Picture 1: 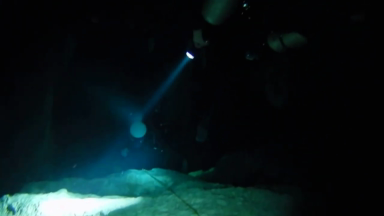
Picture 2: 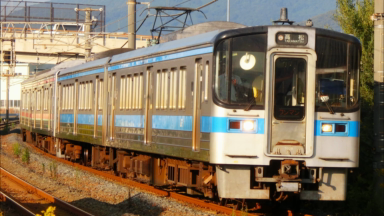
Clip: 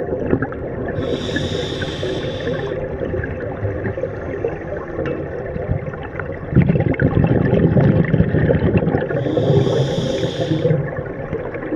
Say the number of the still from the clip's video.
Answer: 1